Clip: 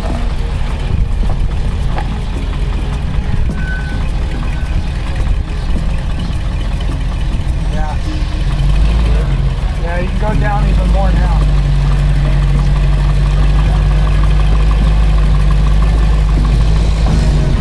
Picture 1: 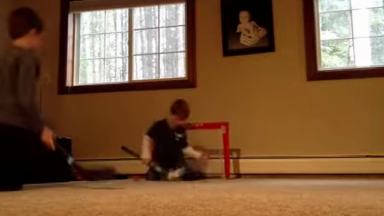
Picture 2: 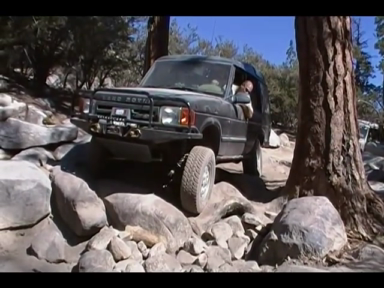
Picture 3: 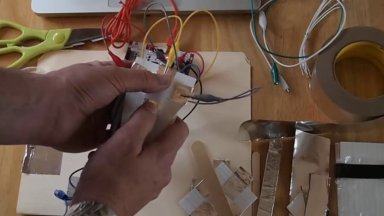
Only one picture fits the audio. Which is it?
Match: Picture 2